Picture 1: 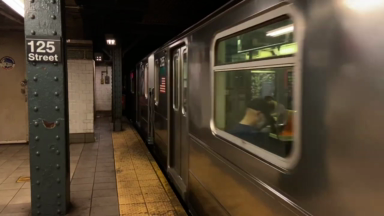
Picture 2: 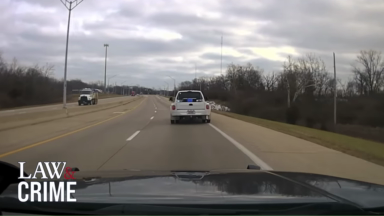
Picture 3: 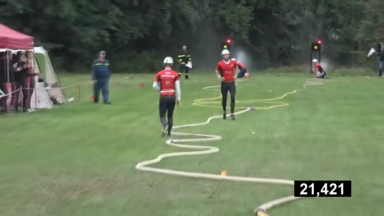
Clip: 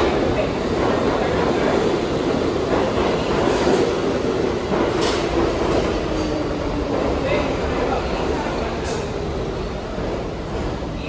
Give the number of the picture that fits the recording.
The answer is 1